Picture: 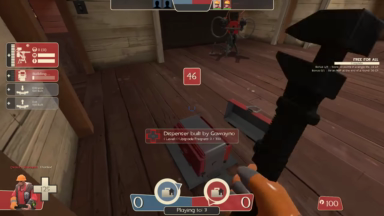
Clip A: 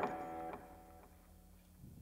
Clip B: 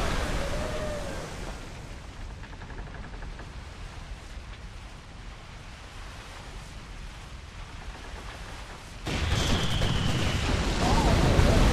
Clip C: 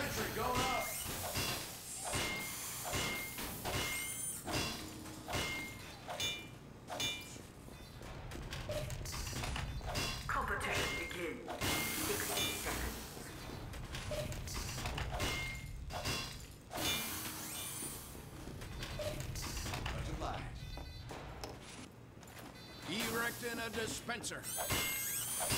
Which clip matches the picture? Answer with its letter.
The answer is C